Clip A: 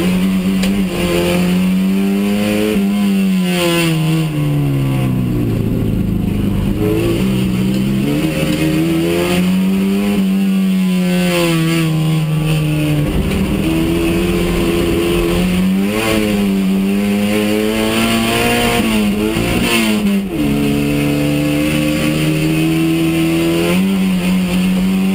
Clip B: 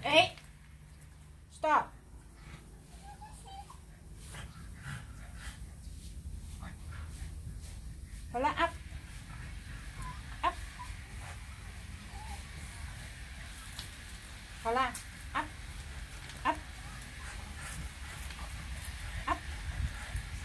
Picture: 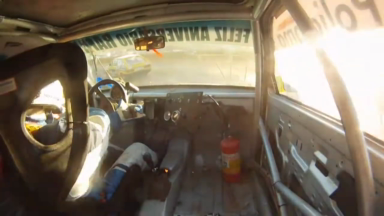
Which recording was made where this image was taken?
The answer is A